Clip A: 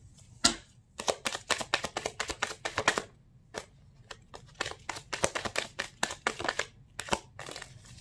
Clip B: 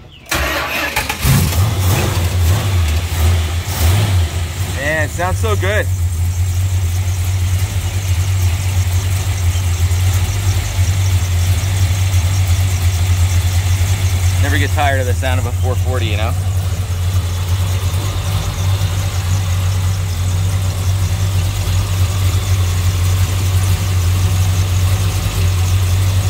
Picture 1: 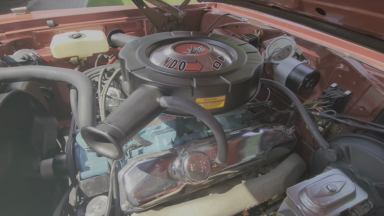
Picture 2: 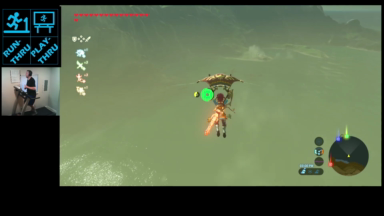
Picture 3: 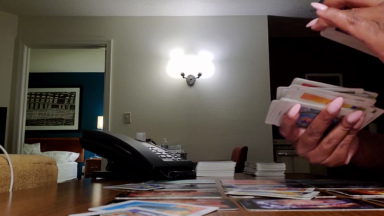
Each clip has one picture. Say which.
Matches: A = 3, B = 1